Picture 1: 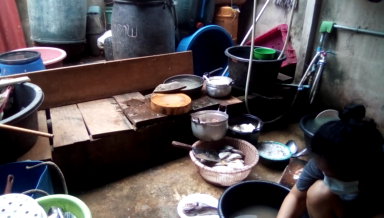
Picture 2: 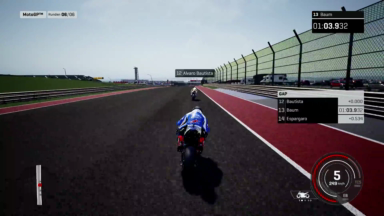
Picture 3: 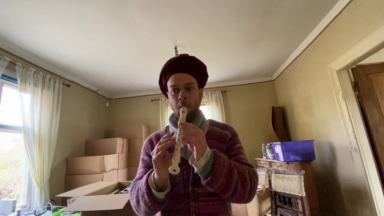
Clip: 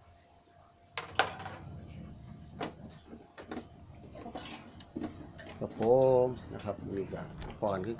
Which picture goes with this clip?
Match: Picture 1